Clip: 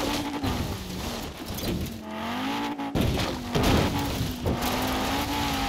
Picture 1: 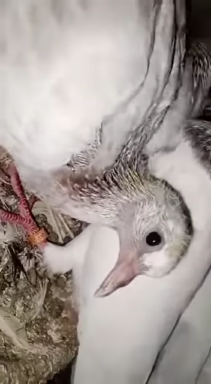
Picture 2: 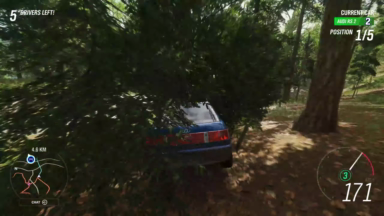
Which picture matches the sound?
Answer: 2